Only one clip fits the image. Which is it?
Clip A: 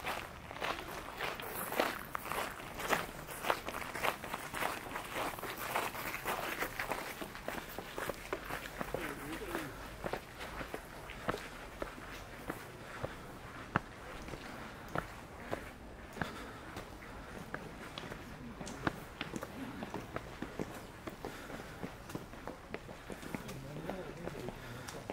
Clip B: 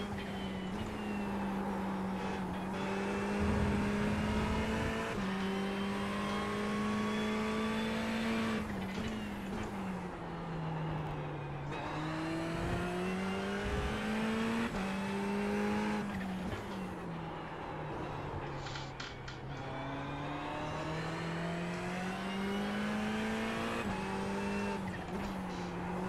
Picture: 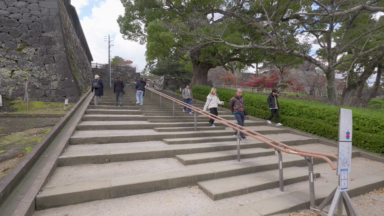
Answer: A